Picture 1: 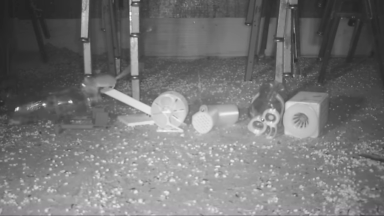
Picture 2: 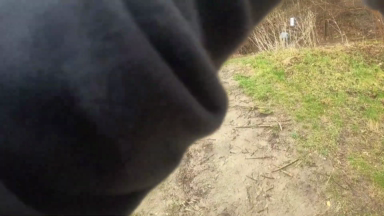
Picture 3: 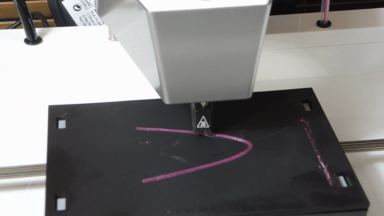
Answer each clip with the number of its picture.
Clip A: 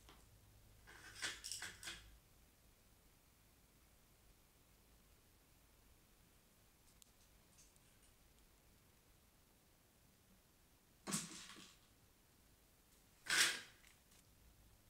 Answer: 1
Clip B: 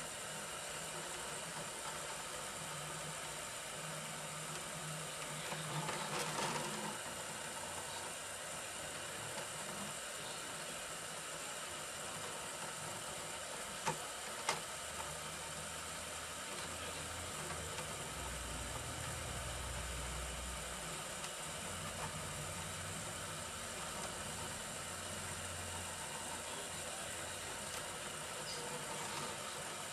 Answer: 3